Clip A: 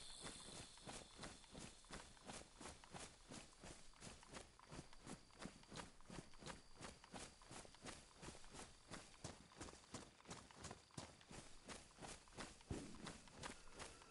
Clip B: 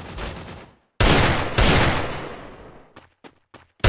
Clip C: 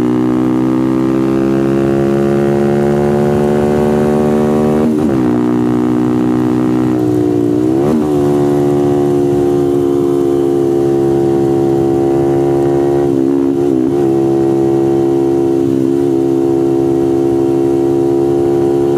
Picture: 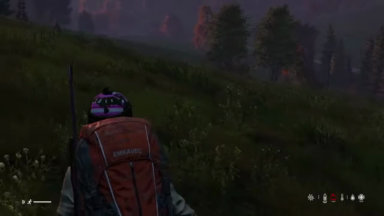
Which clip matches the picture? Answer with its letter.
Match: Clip A